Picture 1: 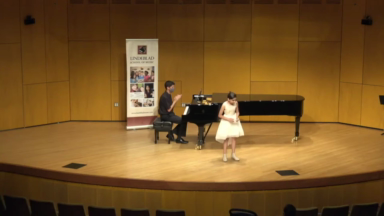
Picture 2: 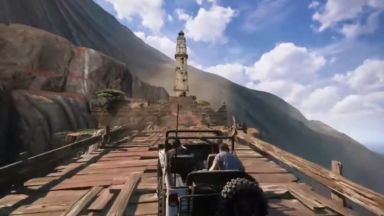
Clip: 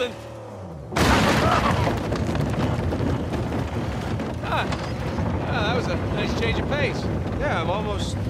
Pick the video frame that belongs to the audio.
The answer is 2